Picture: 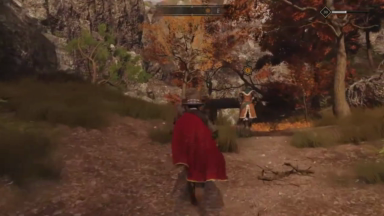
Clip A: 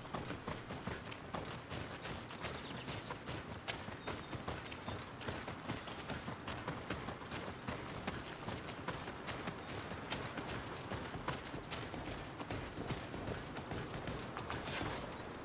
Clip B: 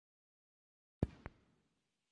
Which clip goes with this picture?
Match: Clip A